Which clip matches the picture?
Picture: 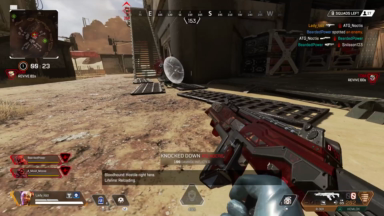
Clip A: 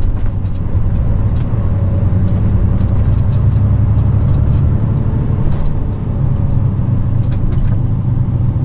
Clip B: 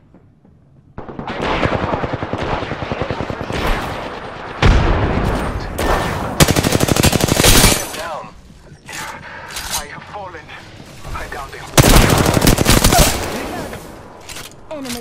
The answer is B